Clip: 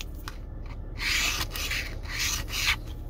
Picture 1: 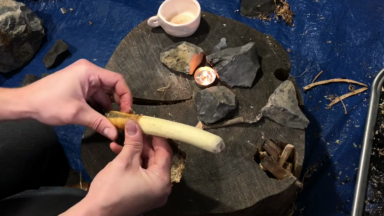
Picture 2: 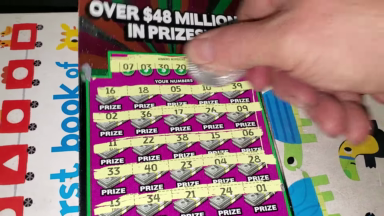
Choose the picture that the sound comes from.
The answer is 2